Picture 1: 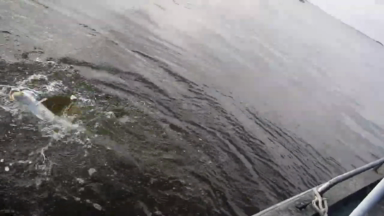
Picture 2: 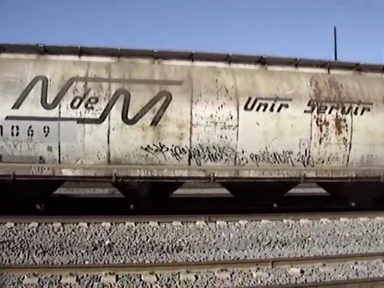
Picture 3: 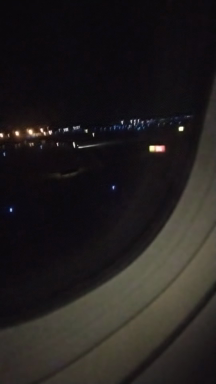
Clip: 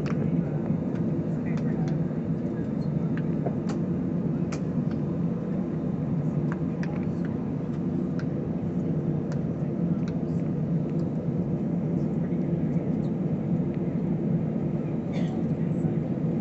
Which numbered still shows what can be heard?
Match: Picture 3